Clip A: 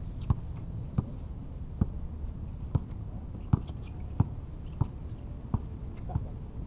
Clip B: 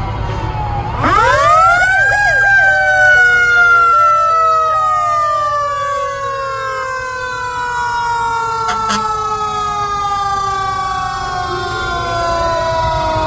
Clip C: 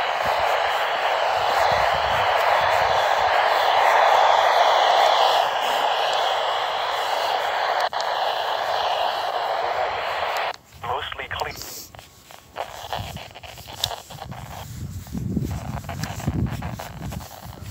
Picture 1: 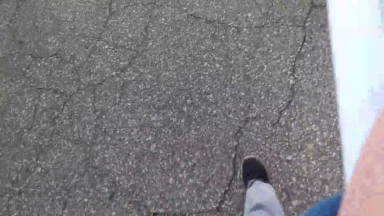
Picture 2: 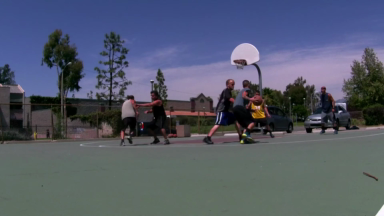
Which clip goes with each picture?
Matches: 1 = C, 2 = A